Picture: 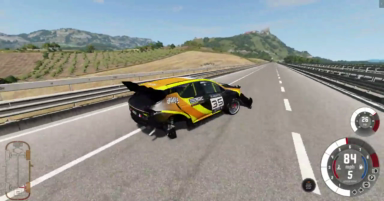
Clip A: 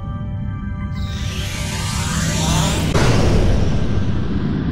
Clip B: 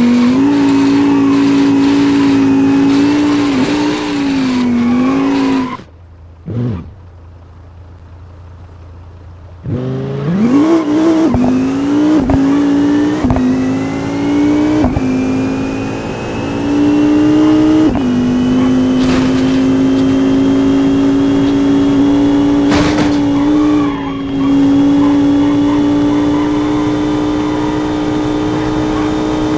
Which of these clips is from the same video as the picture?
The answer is B